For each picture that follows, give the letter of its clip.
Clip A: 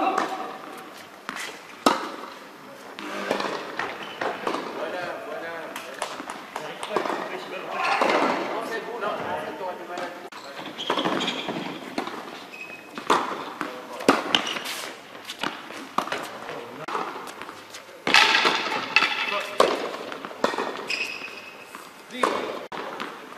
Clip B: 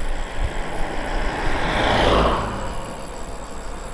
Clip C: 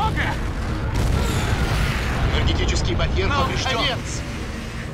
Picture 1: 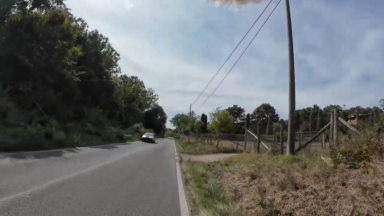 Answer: B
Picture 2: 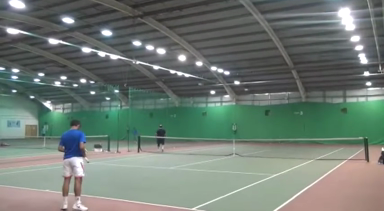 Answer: A